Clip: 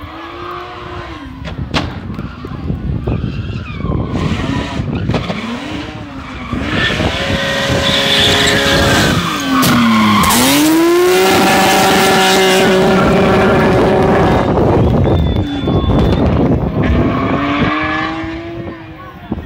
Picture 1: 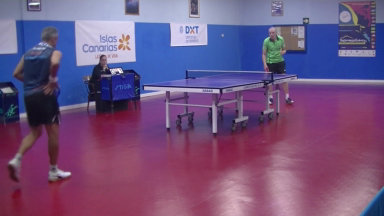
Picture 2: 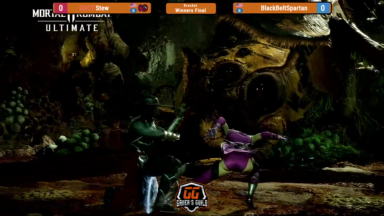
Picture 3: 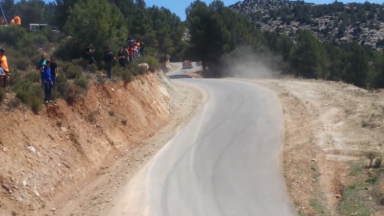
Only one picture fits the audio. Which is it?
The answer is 3